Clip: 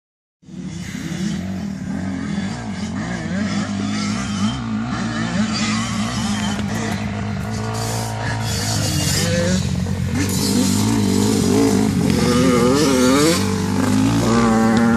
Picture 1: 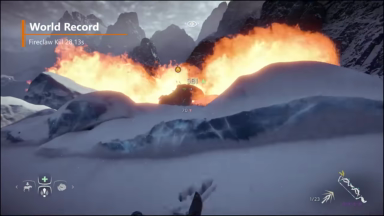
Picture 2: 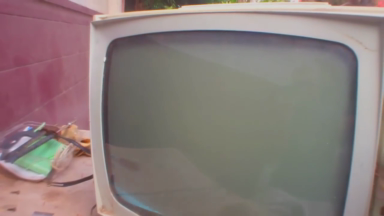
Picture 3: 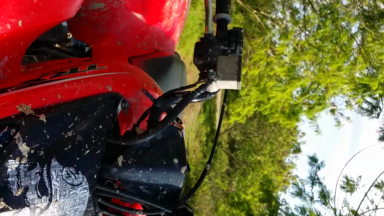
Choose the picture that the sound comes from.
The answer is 3